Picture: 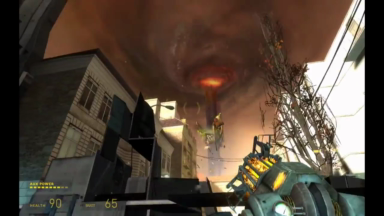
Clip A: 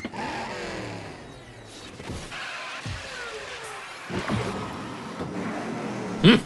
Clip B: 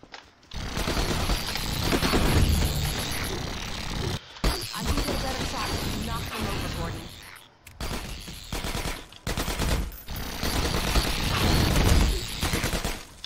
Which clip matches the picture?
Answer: B